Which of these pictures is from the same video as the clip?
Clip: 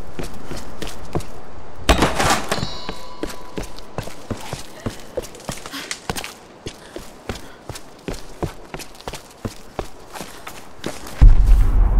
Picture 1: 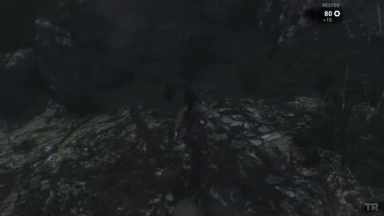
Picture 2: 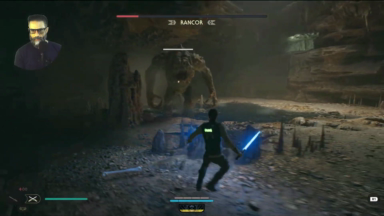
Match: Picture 1